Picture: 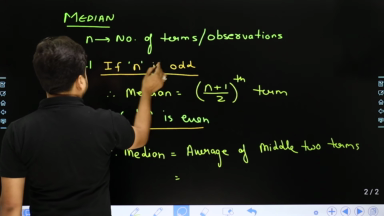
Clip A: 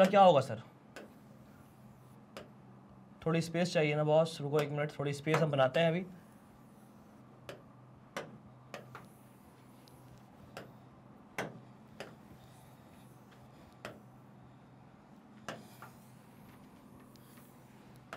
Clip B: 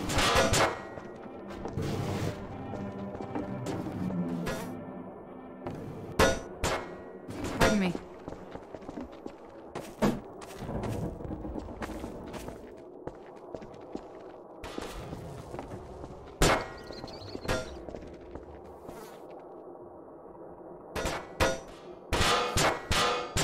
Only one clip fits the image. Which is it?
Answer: A